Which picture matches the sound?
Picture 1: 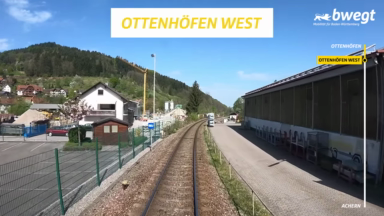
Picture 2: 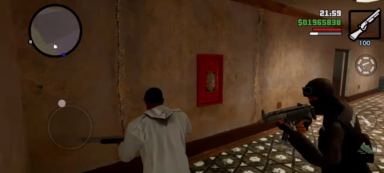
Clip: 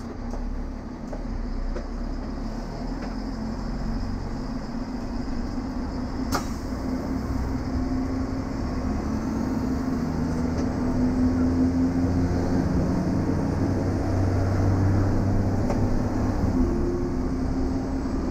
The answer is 1